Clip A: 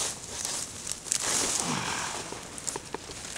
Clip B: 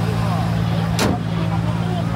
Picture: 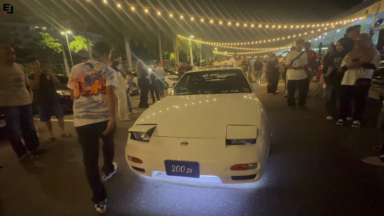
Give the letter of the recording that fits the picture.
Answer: B